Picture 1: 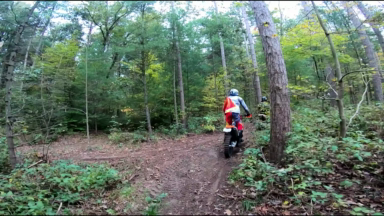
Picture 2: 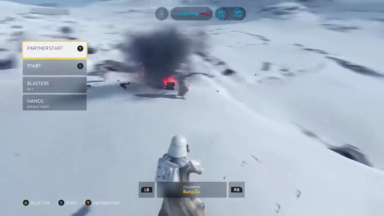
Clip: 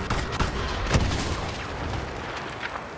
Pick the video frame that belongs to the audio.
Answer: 2